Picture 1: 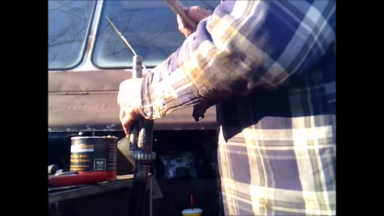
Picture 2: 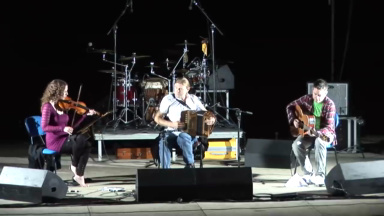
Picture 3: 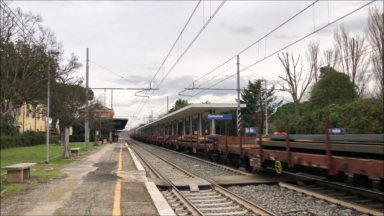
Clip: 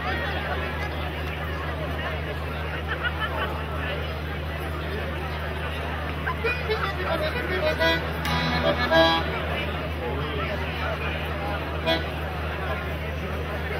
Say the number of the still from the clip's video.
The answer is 2